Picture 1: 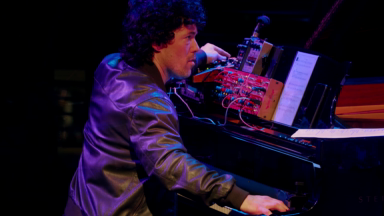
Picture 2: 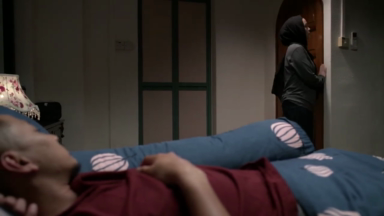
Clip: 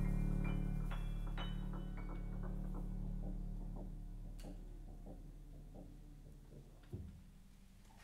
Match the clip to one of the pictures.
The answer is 1